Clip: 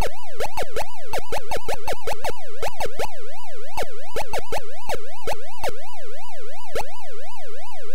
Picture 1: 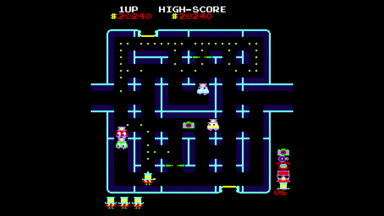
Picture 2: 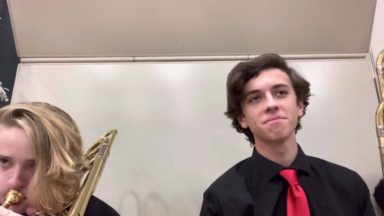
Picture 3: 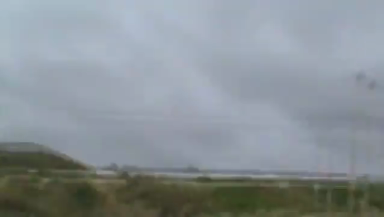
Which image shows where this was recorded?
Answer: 1